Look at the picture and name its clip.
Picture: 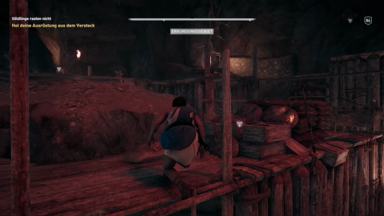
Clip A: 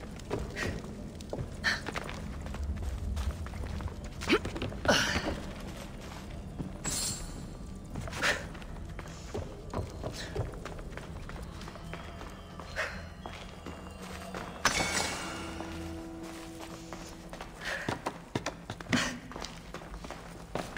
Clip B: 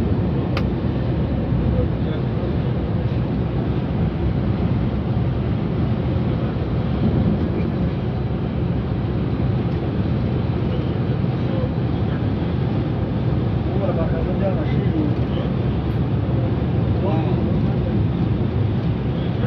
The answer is A